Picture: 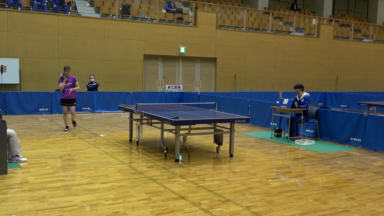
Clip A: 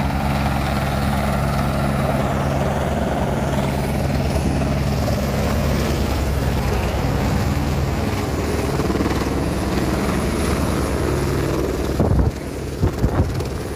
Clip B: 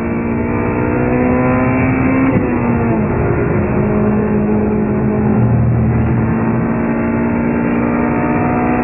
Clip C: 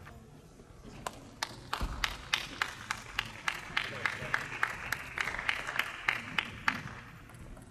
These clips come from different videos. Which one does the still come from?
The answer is C